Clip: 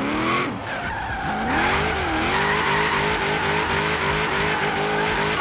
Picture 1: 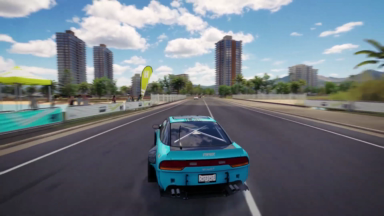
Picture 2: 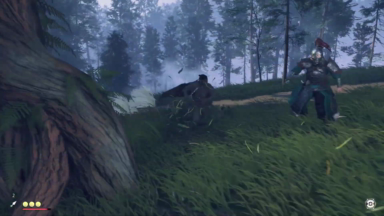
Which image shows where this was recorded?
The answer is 1